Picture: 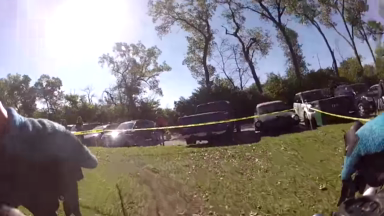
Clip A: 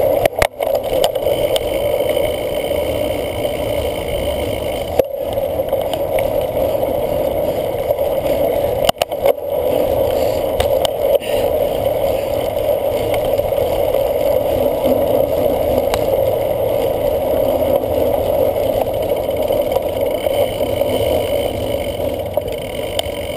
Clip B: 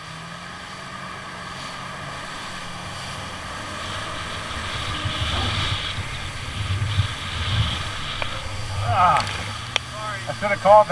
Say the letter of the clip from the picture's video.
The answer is A